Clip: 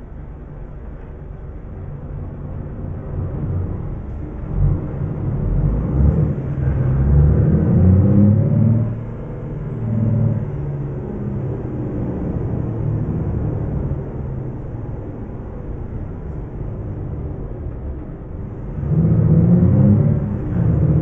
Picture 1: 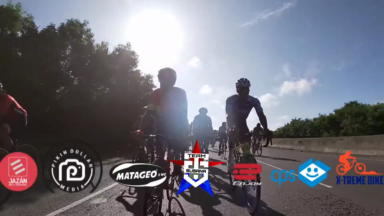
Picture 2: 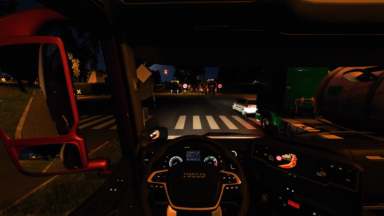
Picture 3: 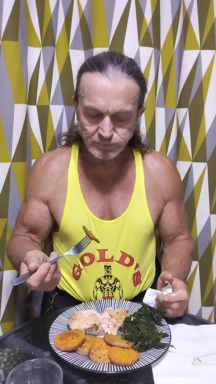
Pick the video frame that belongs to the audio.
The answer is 2